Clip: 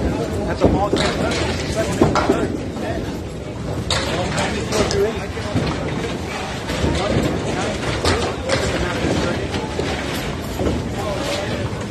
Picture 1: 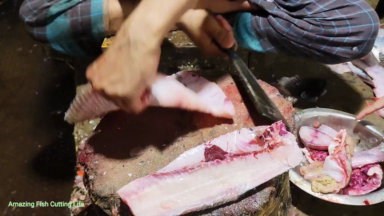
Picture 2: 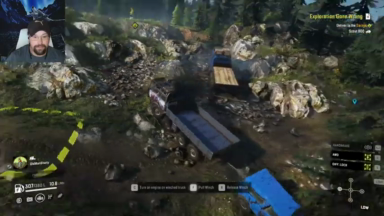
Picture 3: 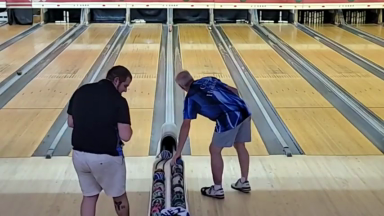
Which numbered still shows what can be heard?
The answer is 3